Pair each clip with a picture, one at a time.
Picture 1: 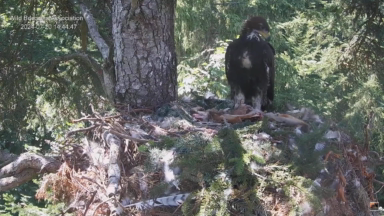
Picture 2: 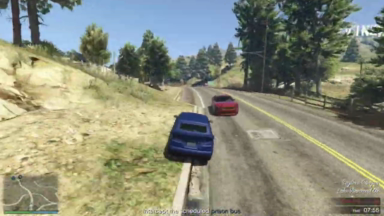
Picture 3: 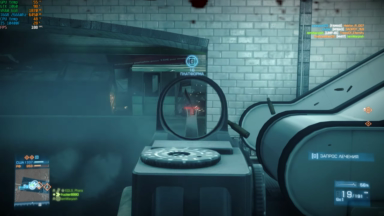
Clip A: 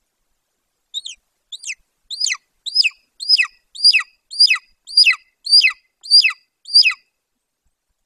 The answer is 1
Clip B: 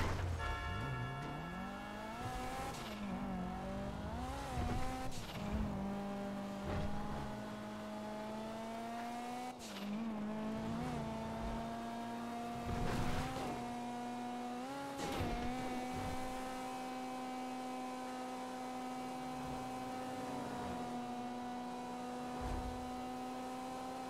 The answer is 2